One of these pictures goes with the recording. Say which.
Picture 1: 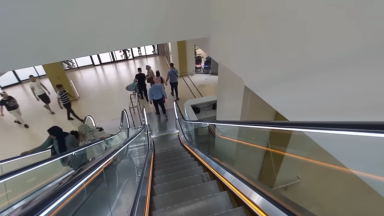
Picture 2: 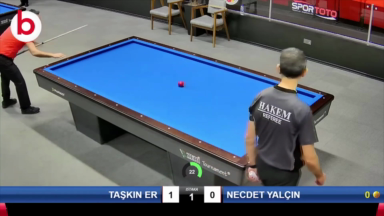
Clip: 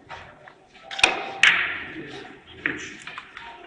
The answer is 2